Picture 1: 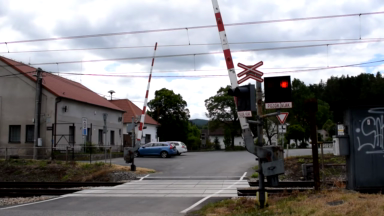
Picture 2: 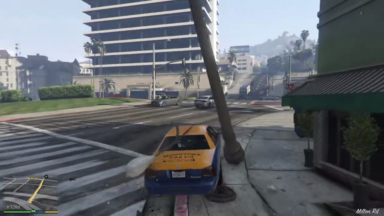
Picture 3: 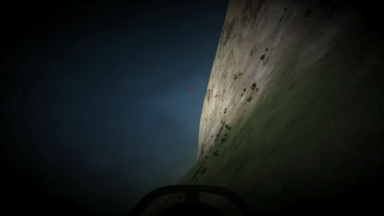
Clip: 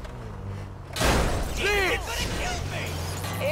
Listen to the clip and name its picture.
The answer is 2